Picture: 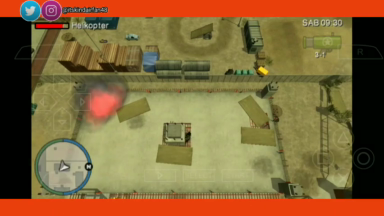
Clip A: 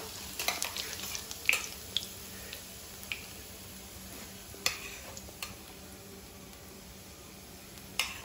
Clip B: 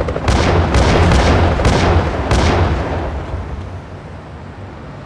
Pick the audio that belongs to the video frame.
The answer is B